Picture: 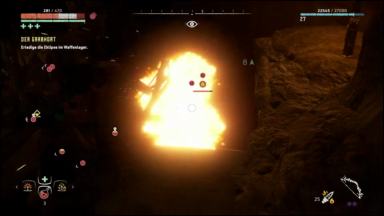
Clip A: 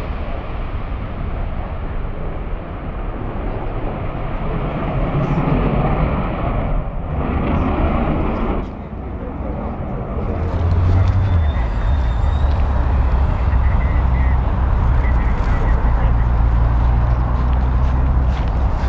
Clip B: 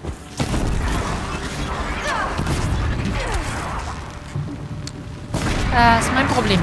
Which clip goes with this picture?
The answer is B